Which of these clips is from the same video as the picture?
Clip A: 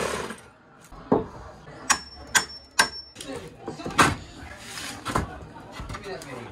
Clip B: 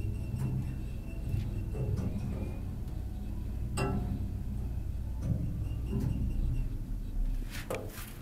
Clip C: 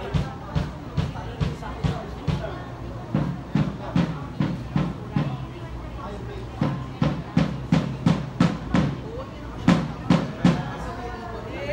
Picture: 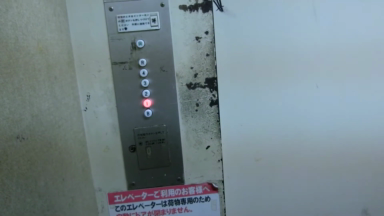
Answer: B